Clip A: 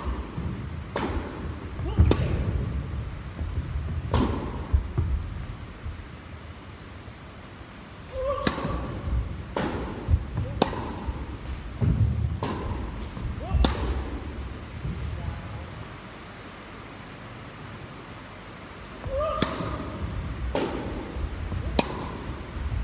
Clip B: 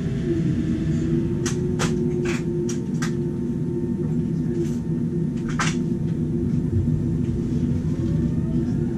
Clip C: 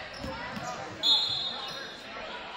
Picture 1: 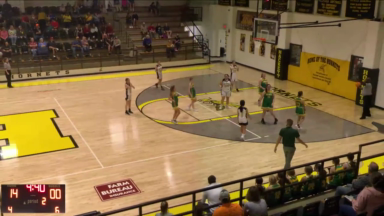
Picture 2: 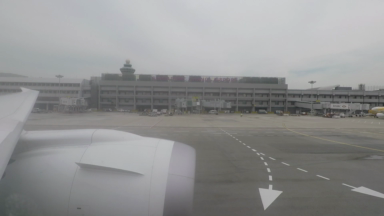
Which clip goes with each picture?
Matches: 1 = C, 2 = B